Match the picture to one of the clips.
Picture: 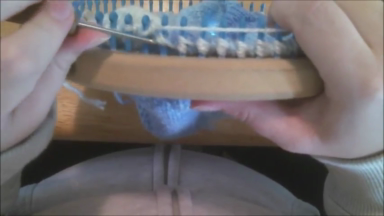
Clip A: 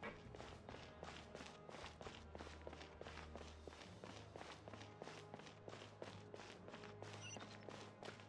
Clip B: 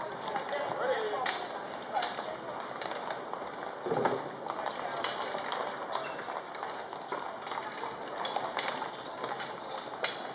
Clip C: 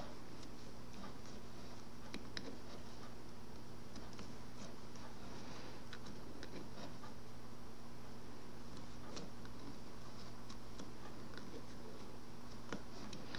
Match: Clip C